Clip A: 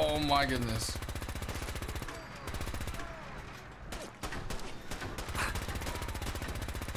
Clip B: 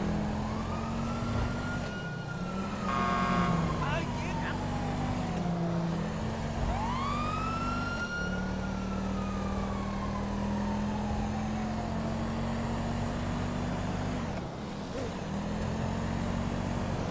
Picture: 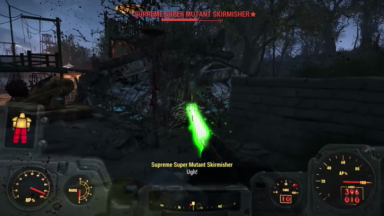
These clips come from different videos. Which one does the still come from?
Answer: A